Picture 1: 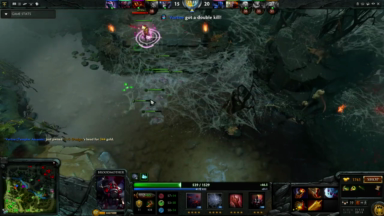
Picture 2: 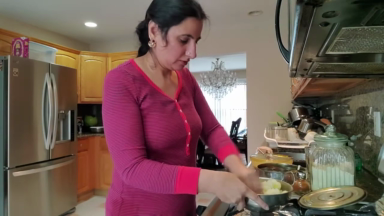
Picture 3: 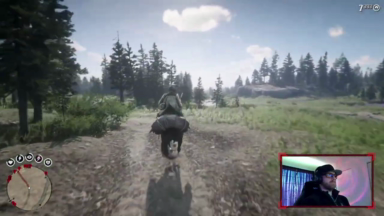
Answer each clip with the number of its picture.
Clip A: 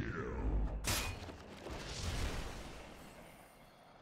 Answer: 1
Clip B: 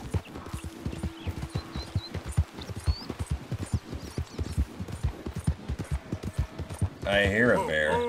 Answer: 3